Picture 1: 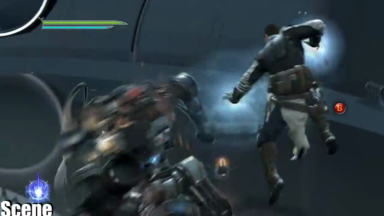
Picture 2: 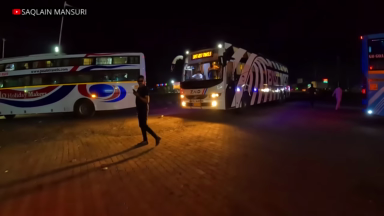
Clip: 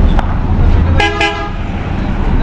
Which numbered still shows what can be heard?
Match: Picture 2